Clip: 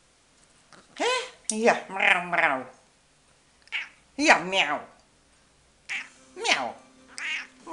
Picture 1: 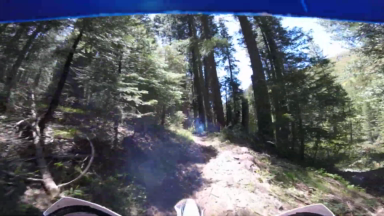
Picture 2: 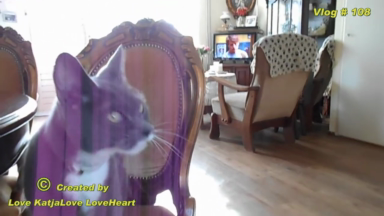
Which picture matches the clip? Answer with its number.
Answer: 2